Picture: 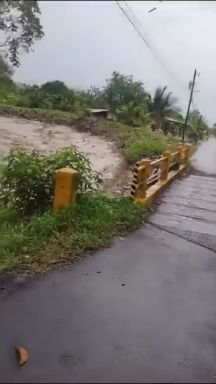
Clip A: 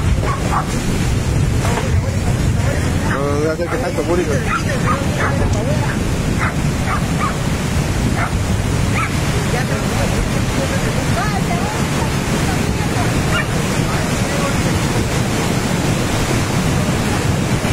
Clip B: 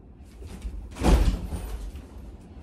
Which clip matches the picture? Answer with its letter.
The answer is A